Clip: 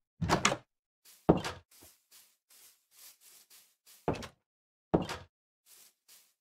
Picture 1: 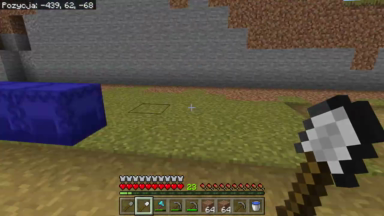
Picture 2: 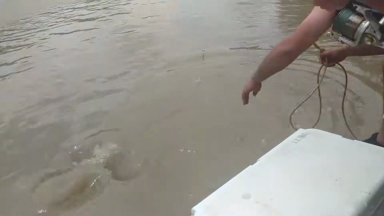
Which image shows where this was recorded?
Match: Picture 1